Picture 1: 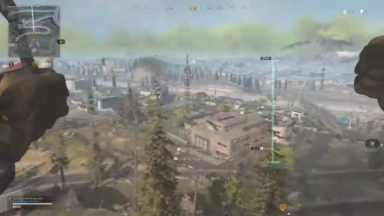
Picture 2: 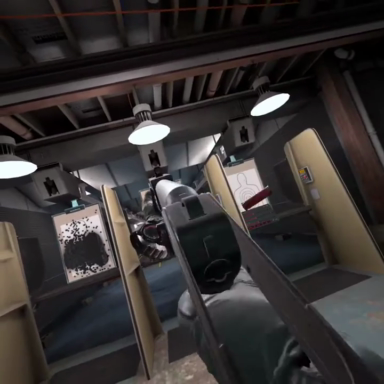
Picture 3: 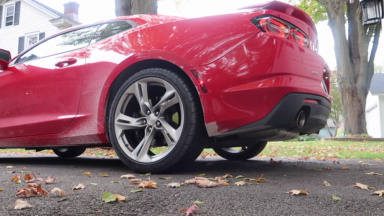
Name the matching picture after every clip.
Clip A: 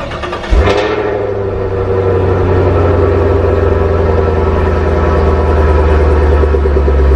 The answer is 3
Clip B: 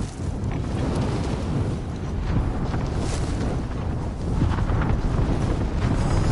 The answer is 1